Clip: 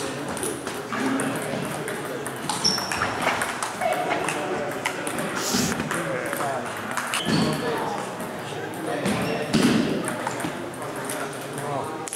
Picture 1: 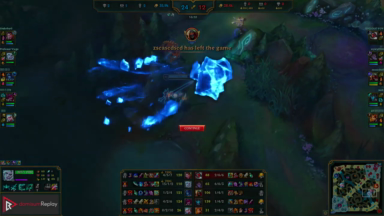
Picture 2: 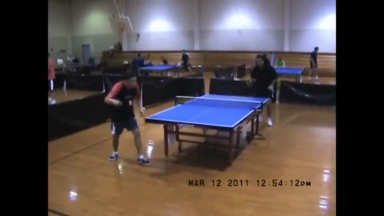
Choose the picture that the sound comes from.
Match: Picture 2